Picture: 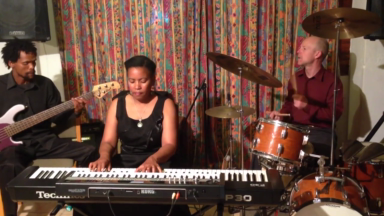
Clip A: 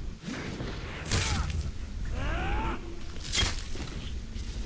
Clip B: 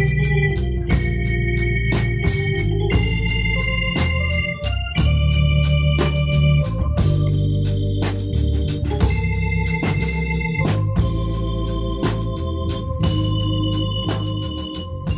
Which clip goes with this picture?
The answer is B